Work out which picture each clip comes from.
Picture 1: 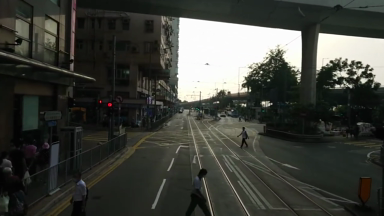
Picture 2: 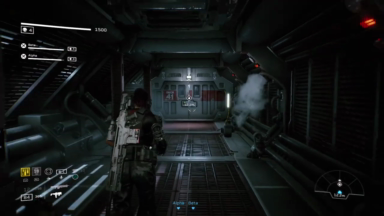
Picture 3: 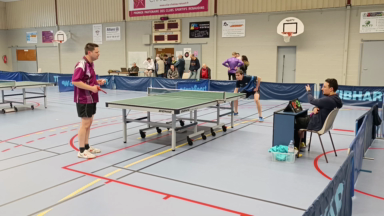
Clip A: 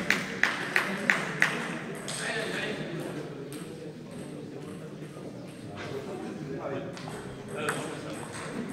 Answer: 3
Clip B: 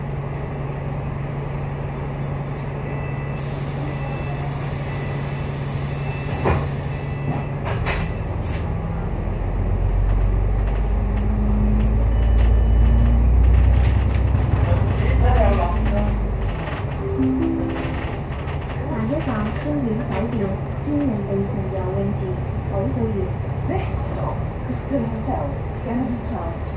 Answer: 1